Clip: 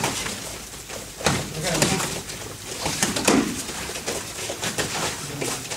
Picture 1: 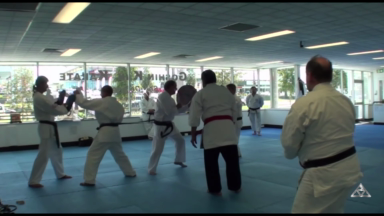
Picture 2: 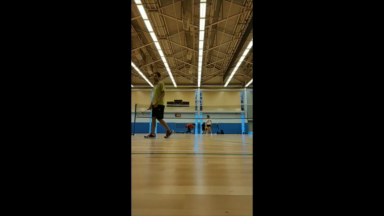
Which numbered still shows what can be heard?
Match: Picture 1